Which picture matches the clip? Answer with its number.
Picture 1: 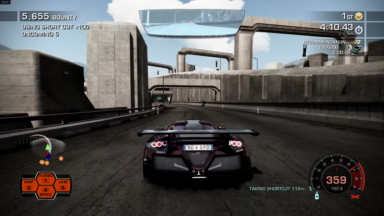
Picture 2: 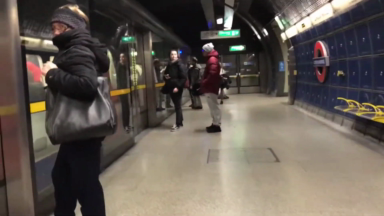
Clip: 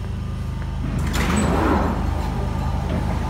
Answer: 2